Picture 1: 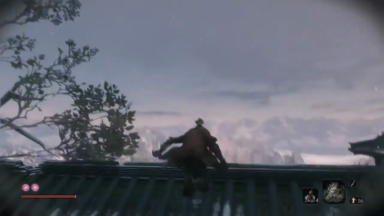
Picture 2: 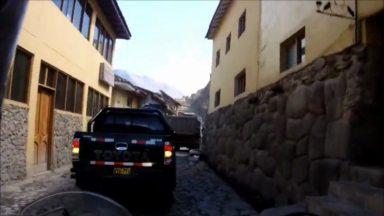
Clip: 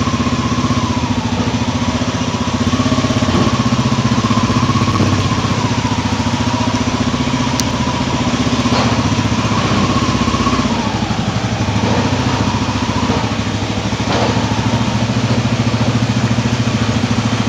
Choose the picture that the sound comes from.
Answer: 2